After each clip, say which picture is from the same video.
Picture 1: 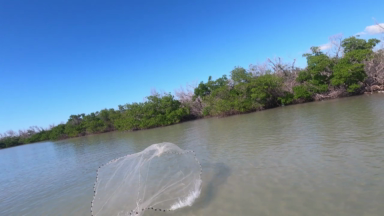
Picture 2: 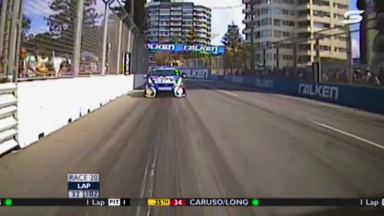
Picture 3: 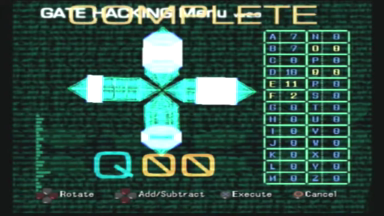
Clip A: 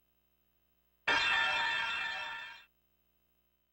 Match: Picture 3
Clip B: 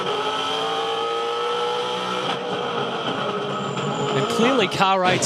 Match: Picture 2